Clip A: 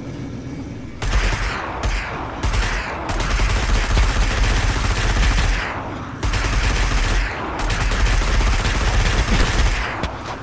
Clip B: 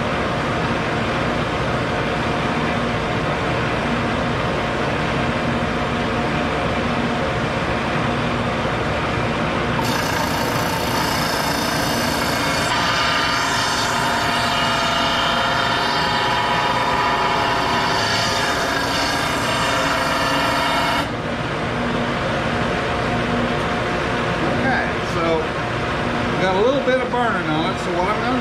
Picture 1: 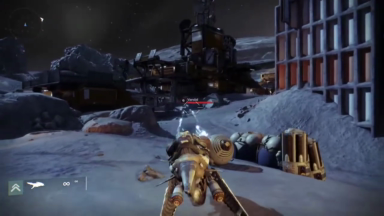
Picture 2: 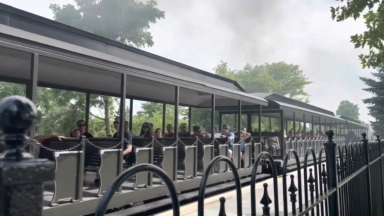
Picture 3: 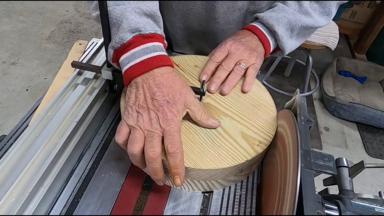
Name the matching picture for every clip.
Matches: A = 1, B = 3